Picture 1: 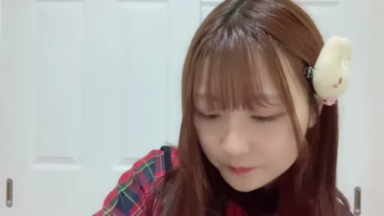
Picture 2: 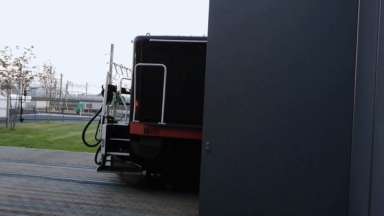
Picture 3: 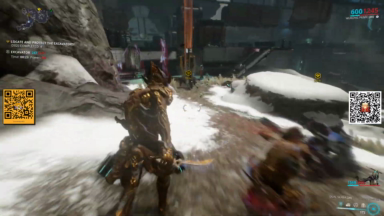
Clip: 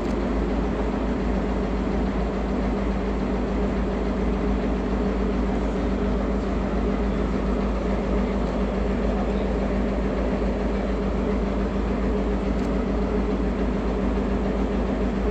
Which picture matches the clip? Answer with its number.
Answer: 2